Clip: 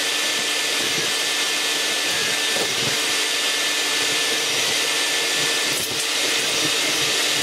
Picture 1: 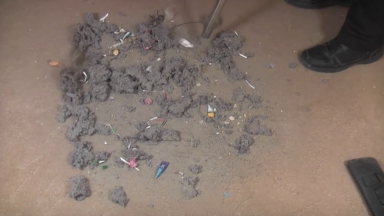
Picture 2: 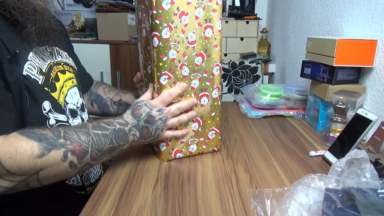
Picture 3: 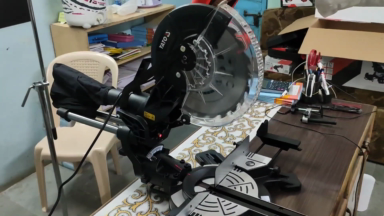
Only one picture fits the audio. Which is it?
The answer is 1